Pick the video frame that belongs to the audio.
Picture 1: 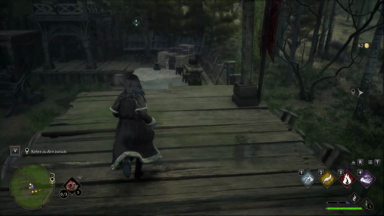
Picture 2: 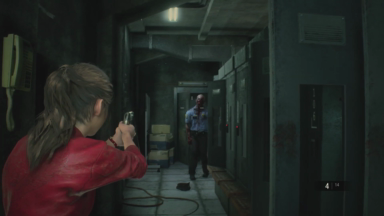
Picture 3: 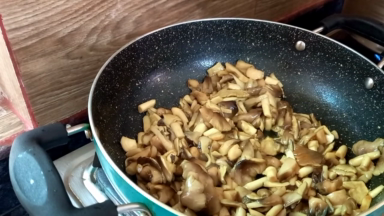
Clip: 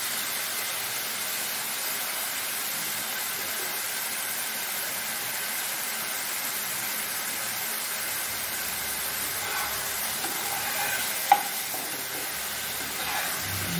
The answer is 3